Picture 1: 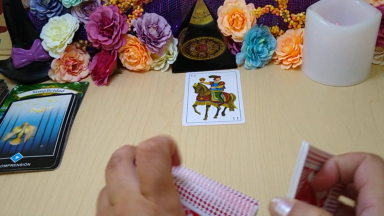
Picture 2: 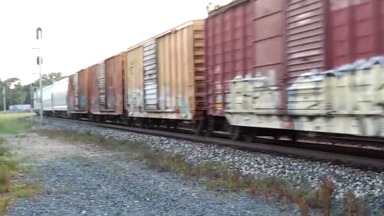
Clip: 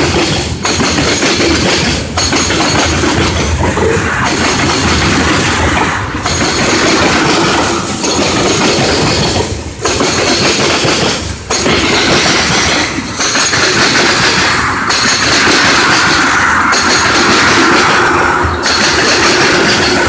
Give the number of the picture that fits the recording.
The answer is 2